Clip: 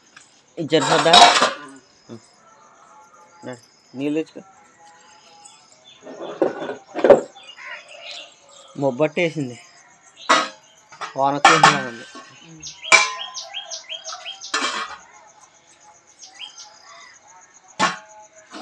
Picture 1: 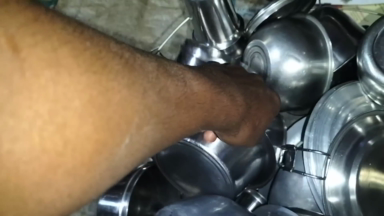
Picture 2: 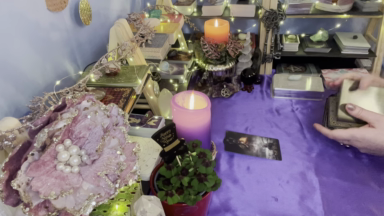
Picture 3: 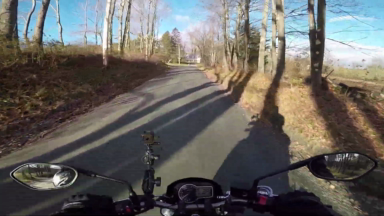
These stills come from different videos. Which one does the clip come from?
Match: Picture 1